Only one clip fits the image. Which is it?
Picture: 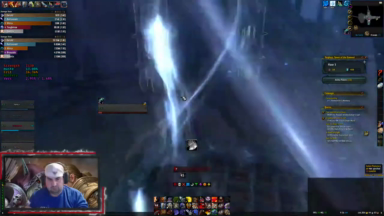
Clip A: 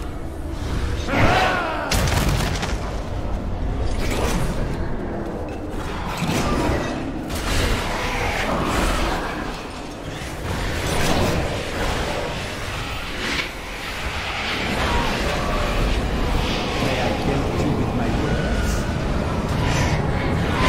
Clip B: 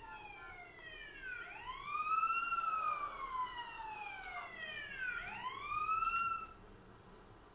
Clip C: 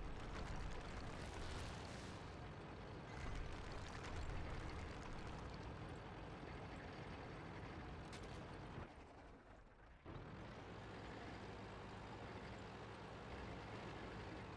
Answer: A